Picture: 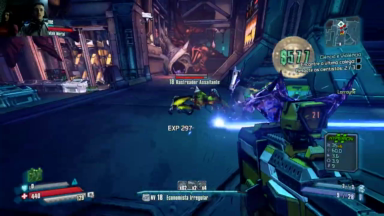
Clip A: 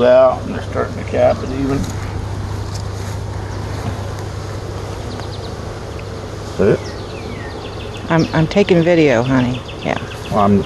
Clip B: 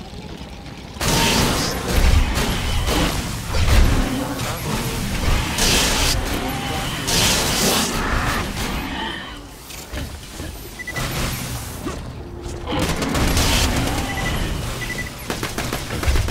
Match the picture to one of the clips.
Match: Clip B